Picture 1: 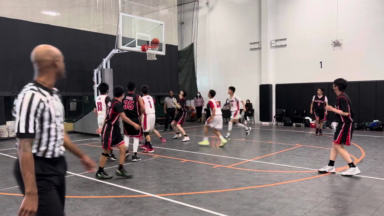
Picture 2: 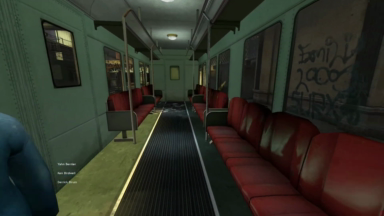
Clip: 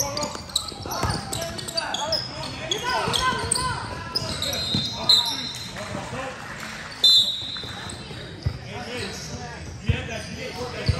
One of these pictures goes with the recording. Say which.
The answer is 1